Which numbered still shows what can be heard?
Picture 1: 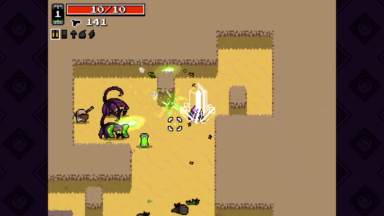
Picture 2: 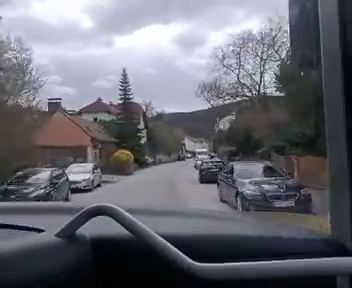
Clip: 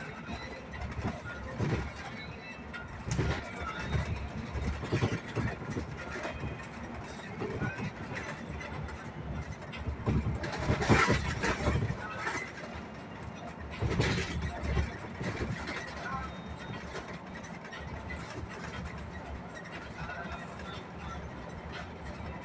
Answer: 2